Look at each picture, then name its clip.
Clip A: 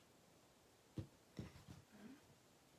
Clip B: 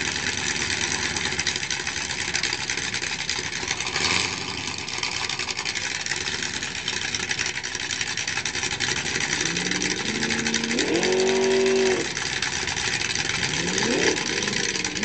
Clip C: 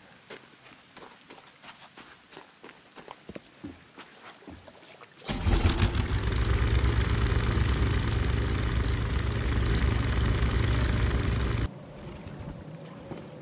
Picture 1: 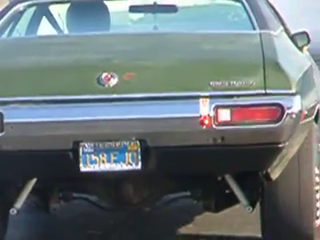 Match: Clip B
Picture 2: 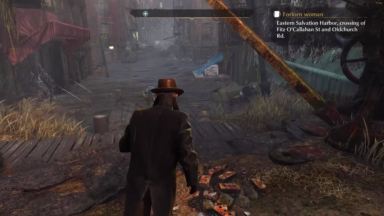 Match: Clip C